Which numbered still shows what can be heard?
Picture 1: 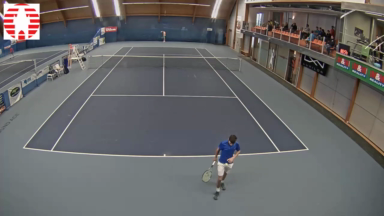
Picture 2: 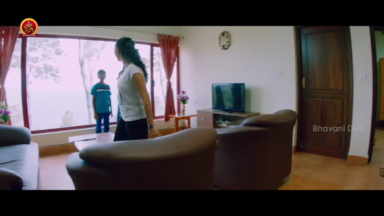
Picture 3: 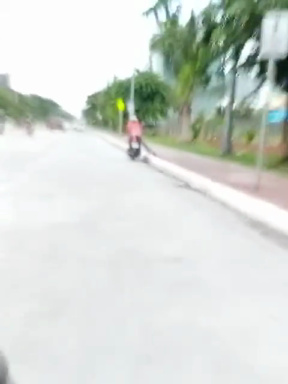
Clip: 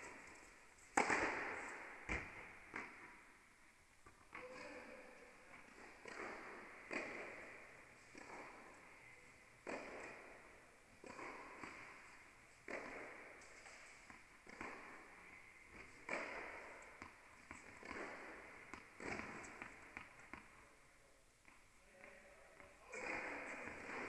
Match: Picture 1